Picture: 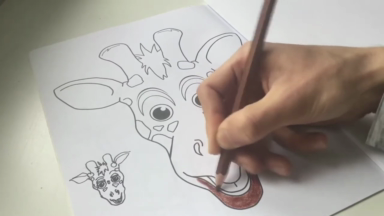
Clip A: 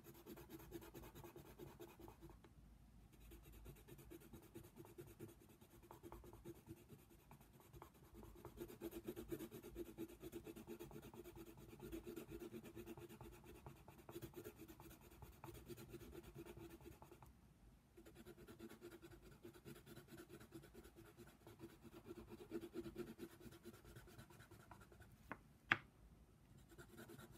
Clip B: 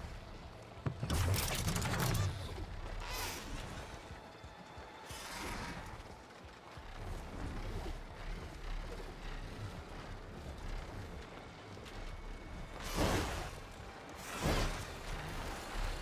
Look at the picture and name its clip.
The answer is A